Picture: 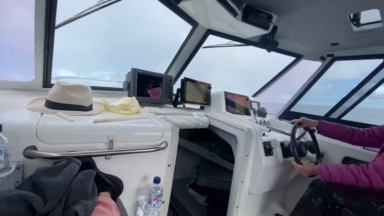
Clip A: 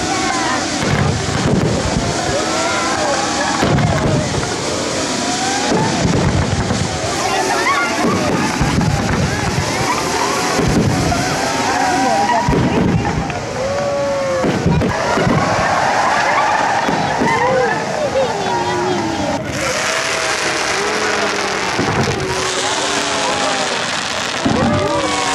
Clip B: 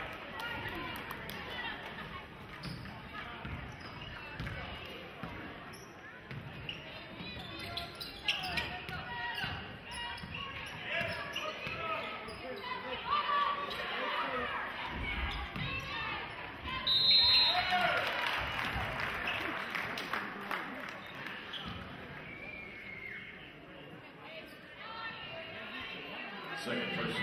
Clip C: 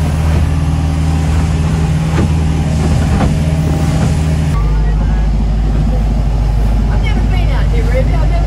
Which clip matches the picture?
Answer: C